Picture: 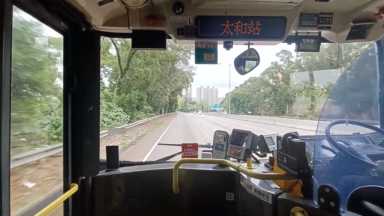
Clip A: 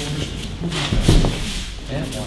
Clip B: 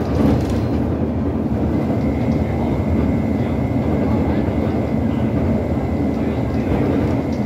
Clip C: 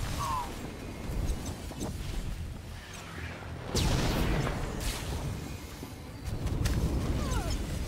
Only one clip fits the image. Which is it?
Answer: B